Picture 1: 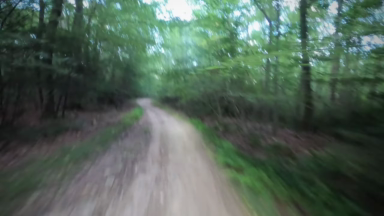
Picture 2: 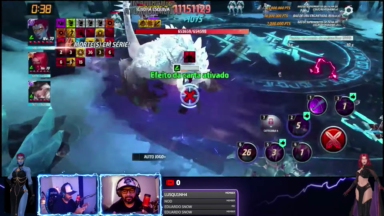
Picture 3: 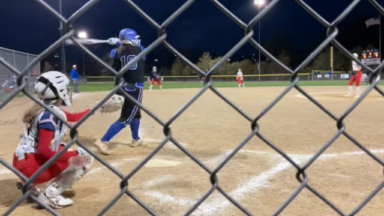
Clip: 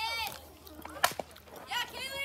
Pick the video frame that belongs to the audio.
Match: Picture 3